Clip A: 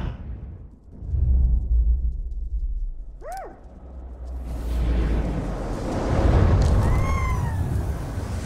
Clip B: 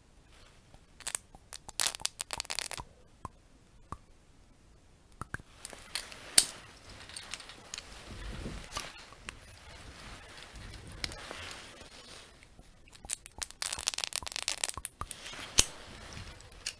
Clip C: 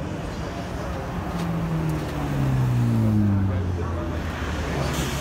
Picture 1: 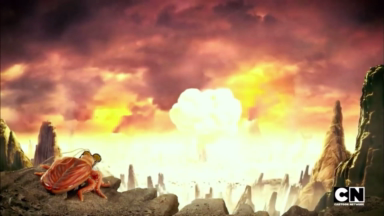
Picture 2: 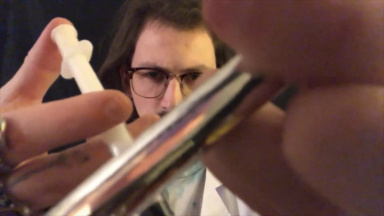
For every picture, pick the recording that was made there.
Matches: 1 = A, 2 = B